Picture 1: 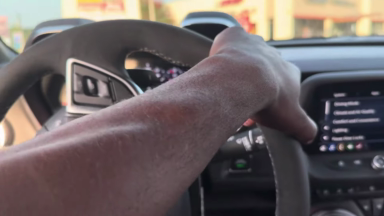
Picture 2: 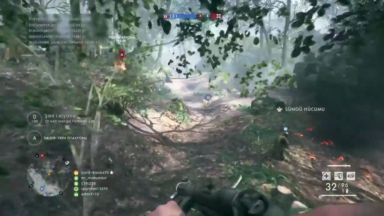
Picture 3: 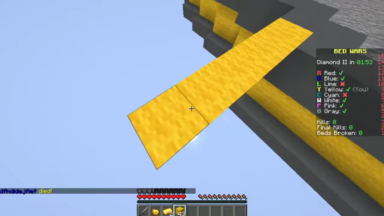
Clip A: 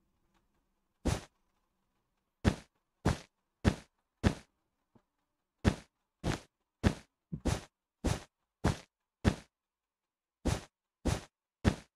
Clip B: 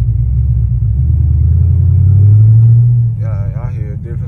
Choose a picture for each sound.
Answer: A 3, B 1